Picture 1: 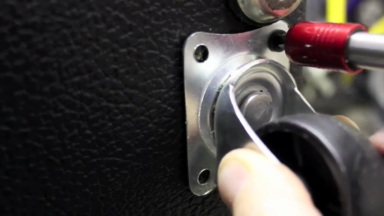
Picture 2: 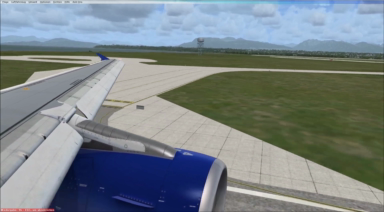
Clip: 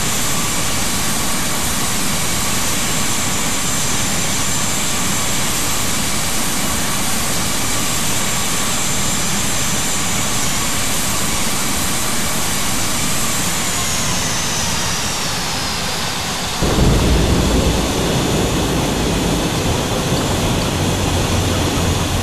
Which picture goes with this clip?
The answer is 2